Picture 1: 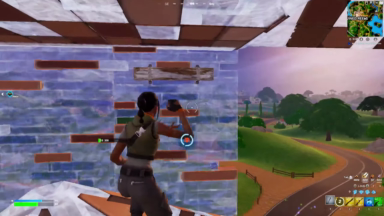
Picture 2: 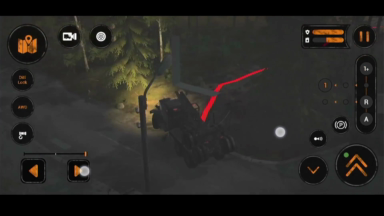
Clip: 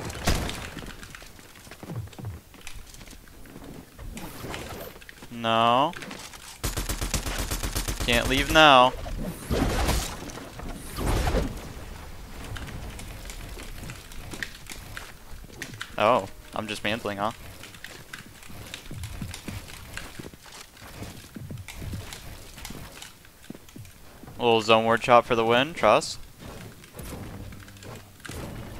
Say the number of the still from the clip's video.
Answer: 1